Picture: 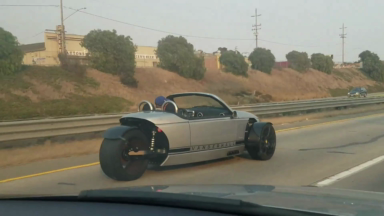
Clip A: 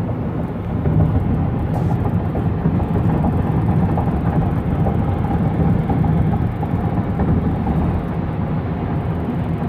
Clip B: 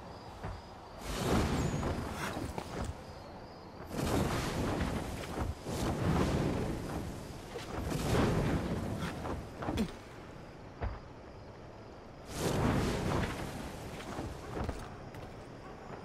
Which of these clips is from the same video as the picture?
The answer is A